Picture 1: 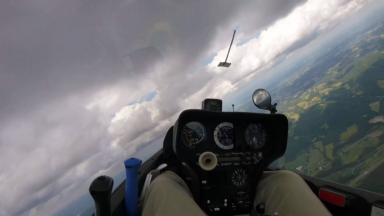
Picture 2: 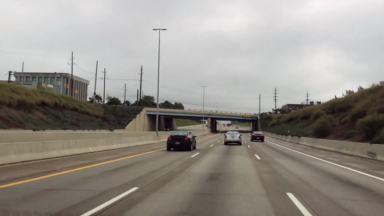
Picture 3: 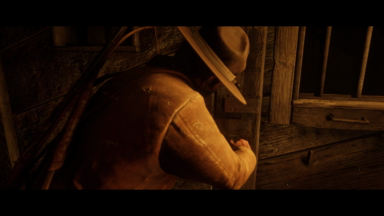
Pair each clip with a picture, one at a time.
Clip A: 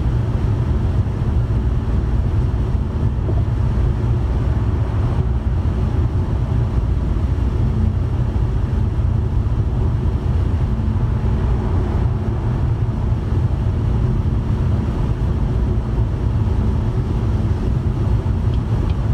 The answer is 2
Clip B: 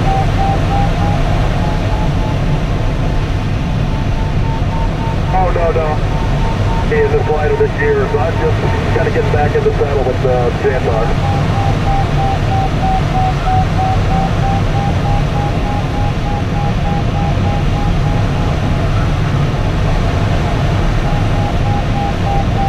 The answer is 1